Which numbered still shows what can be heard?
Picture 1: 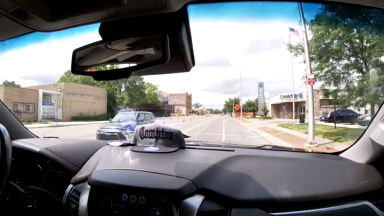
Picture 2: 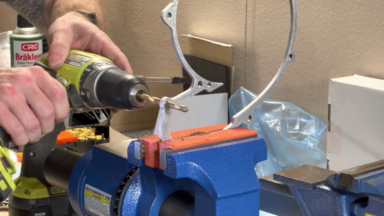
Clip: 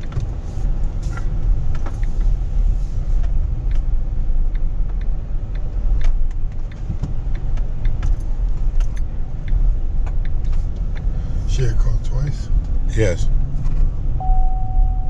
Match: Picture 1